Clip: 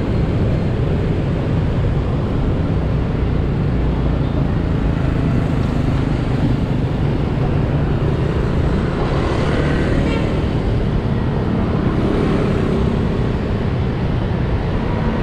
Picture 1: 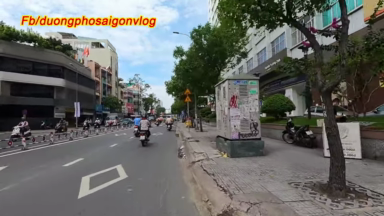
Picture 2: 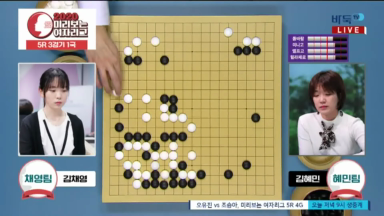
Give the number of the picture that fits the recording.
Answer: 1